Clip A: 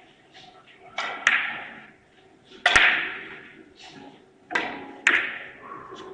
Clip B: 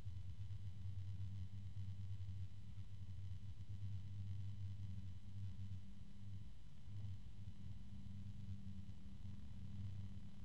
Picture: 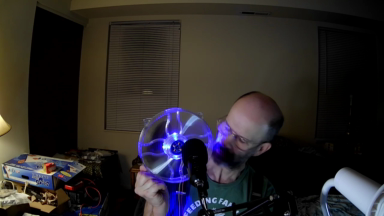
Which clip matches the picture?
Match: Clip B